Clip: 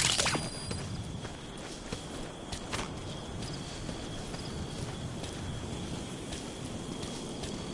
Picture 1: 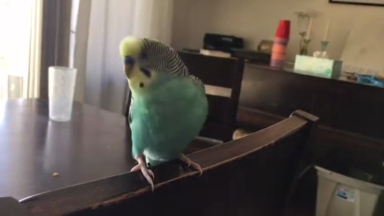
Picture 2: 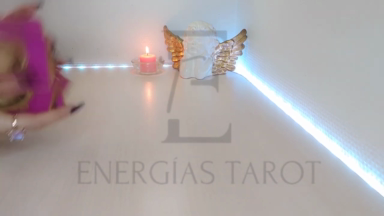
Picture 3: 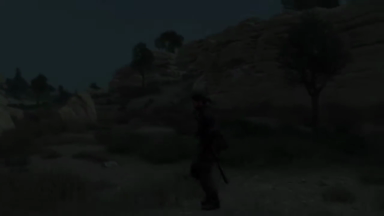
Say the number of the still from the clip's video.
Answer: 3